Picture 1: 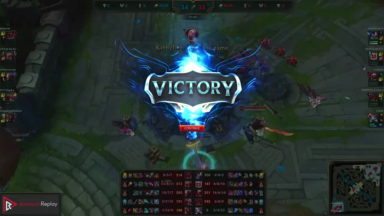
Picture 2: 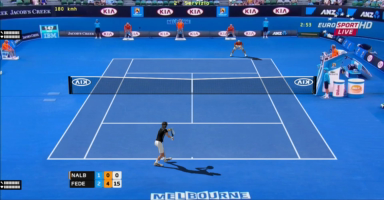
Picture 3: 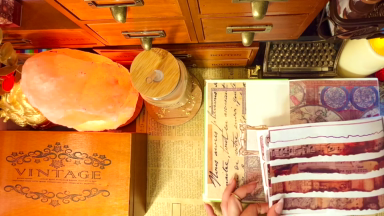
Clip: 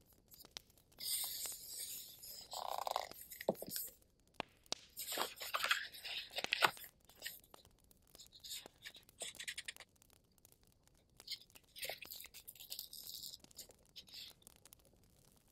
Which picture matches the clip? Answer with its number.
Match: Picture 3